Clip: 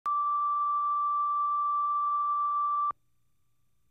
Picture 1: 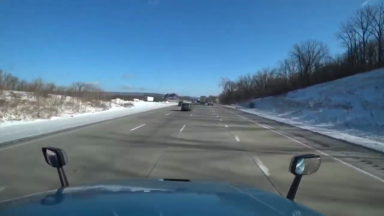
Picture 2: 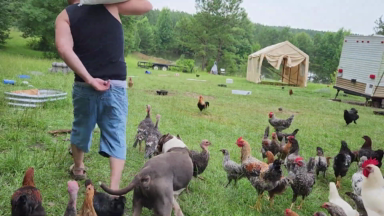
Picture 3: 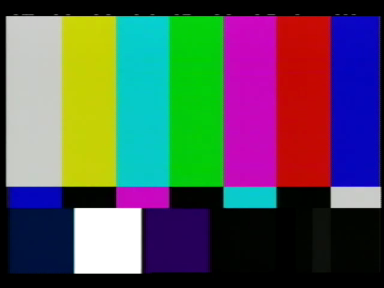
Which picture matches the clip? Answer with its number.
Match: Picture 3